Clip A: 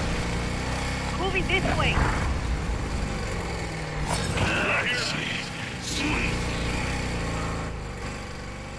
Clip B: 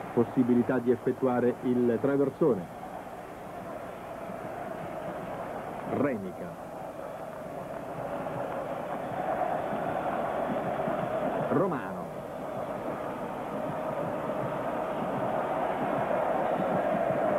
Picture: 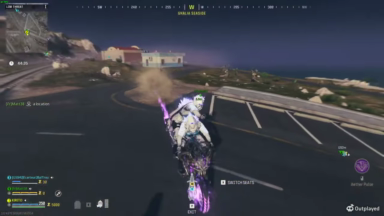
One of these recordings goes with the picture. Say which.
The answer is A